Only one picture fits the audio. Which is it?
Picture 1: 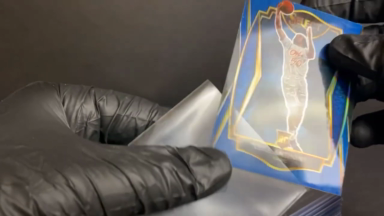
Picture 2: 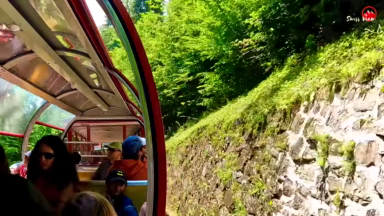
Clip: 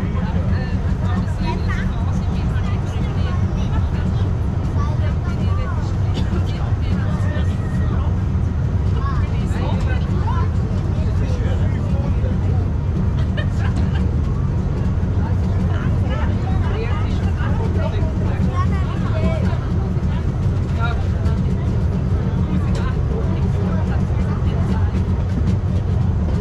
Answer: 2